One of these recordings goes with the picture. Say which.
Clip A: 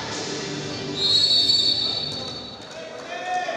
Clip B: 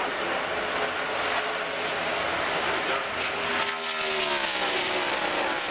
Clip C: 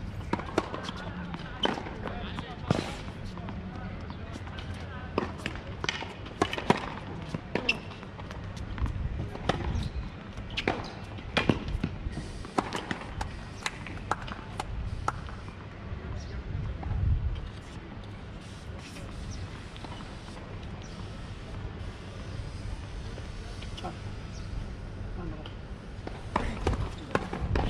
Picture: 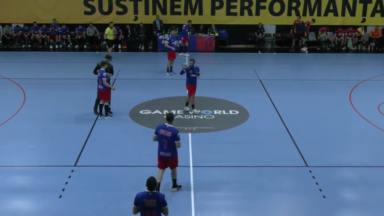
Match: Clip A